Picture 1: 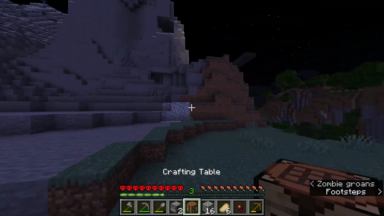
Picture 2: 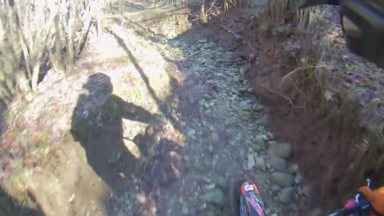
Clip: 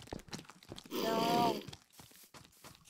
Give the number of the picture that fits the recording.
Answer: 1